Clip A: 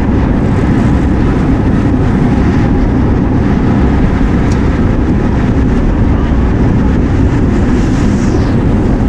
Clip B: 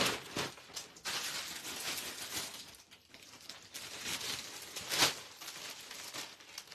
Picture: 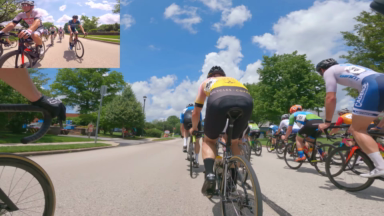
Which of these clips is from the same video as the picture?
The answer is A